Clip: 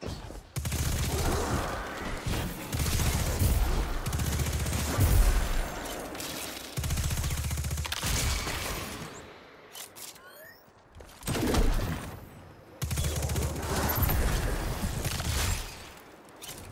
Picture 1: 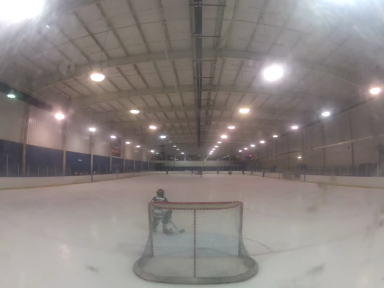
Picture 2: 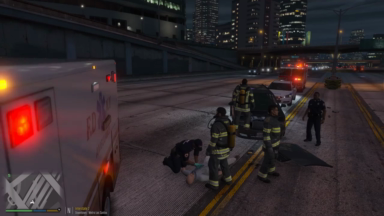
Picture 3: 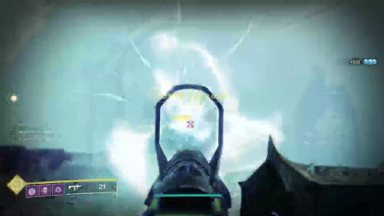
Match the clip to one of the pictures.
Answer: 3